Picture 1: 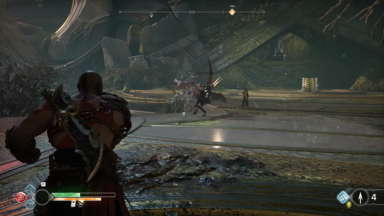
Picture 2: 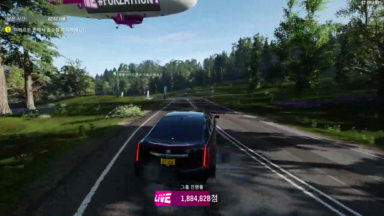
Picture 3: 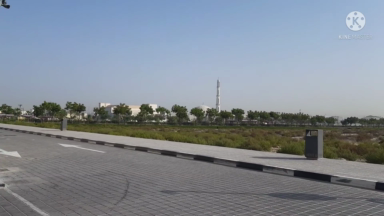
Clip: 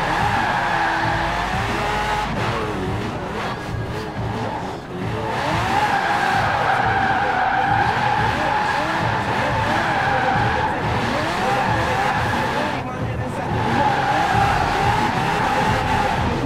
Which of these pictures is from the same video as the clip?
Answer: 2